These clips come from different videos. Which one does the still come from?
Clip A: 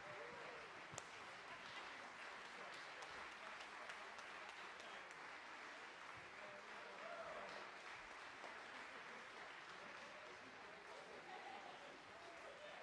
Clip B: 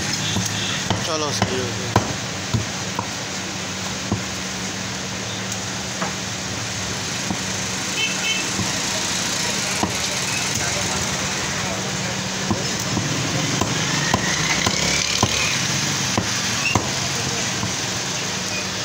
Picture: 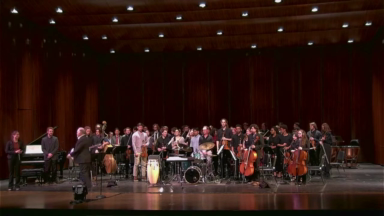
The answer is A